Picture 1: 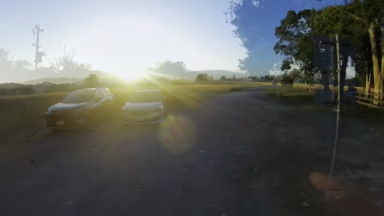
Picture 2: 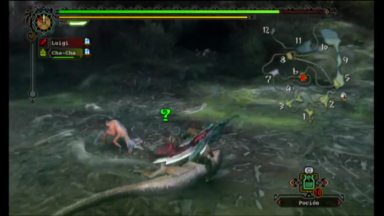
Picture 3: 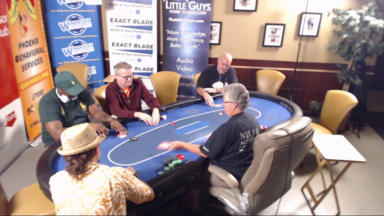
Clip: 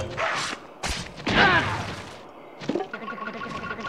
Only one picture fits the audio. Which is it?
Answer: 2